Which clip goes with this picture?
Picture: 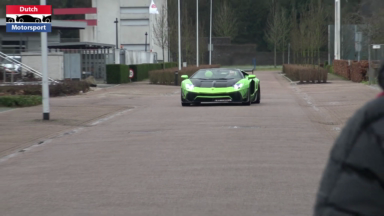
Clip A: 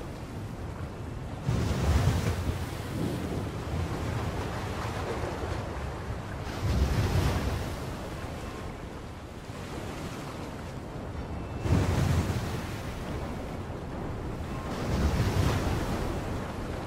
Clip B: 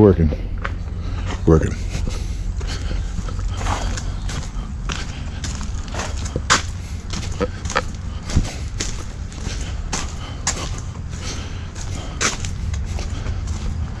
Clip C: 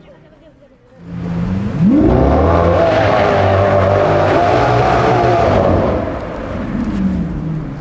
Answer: C